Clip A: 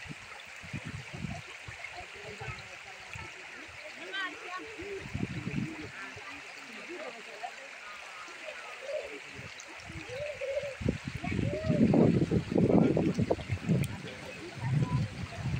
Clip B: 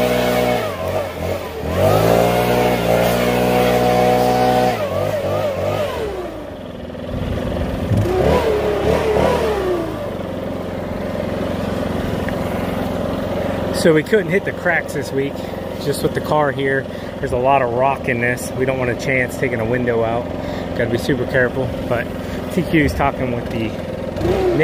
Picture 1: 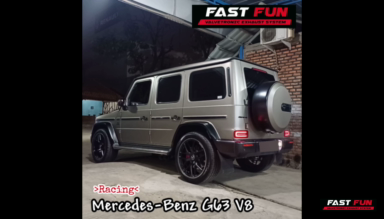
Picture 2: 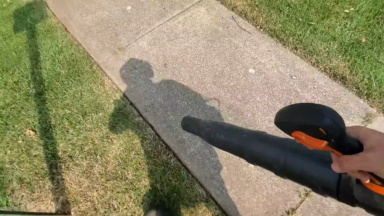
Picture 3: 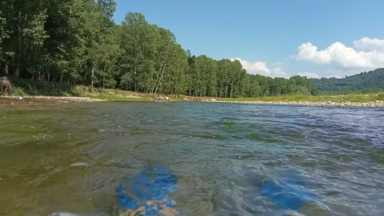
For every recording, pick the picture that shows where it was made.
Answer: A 3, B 2